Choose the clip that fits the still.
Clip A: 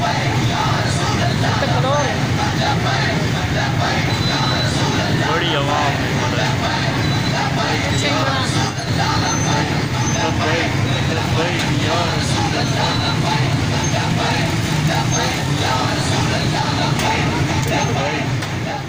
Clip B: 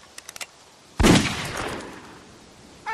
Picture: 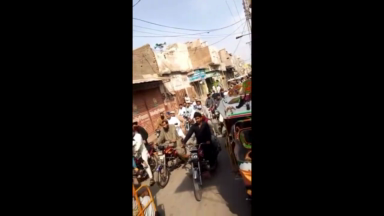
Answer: A